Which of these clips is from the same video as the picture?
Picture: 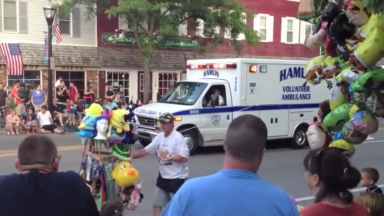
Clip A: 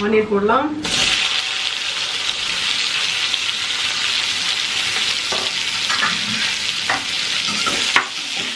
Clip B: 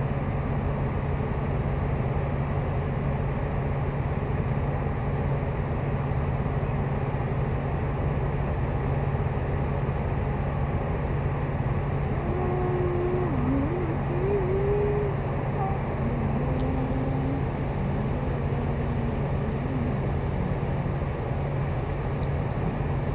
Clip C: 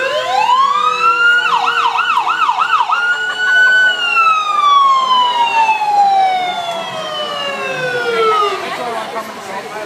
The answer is C